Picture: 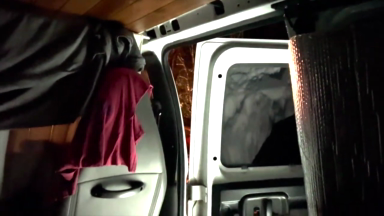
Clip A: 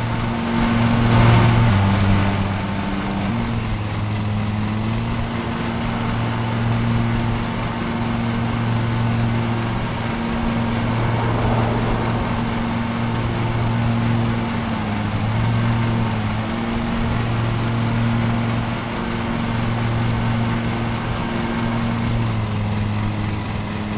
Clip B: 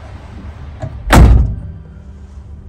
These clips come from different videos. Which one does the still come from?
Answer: B